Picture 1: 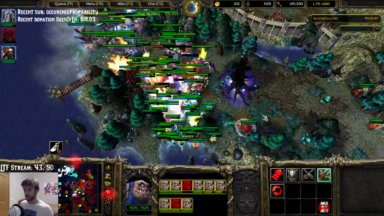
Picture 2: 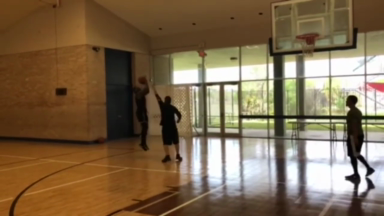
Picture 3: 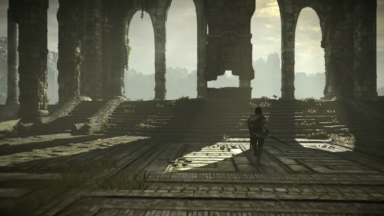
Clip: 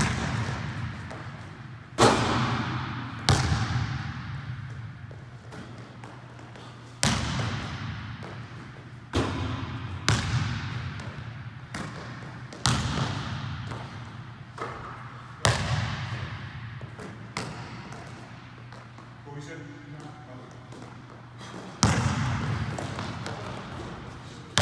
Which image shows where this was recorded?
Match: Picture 2